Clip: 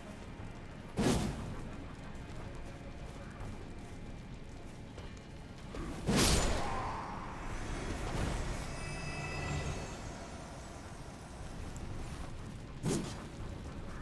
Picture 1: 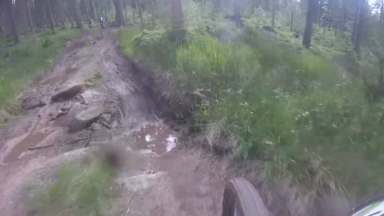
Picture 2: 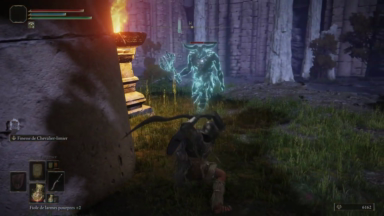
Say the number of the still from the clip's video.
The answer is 2